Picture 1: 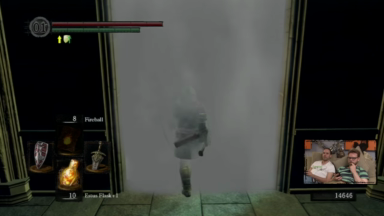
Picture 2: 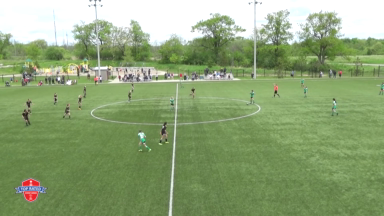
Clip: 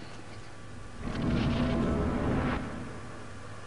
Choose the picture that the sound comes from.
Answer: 1